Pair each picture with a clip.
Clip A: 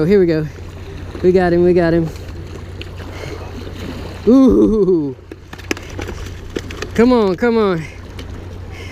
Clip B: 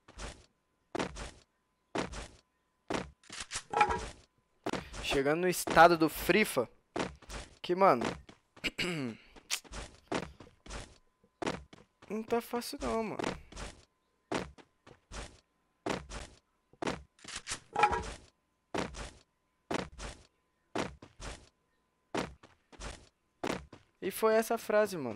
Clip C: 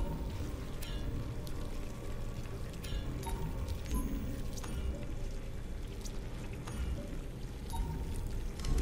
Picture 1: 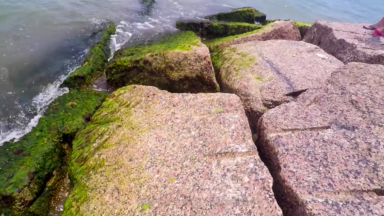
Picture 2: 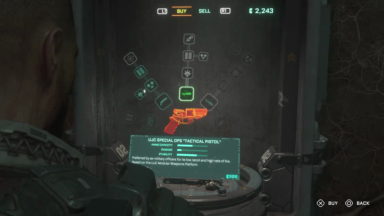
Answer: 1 A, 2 C